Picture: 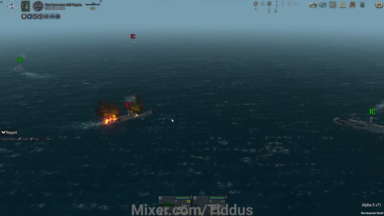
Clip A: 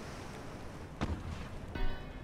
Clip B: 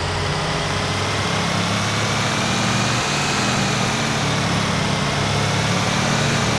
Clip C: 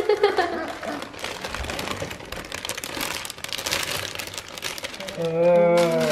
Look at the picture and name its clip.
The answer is A